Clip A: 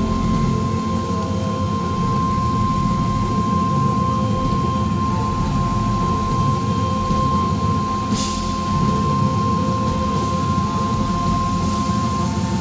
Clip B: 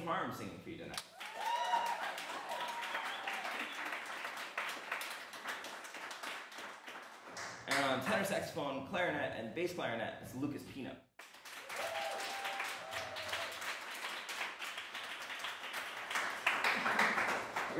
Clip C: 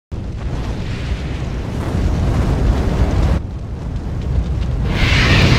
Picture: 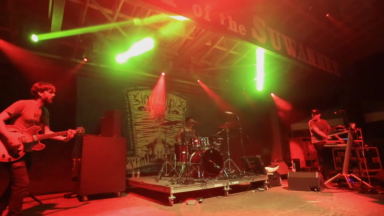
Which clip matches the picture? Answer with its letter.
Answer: A